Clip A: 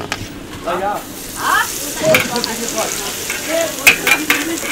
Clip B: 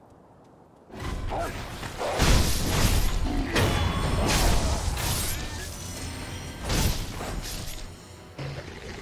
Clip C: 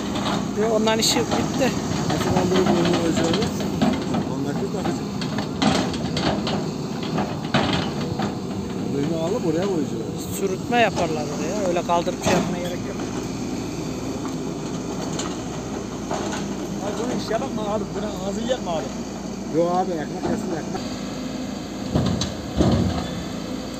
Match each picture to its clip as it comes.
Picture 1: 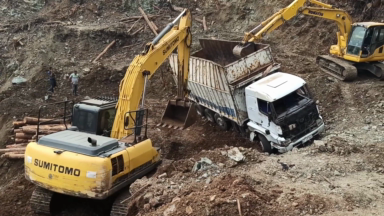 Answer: C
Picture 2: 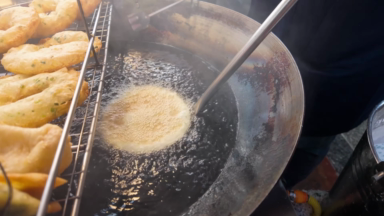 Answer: A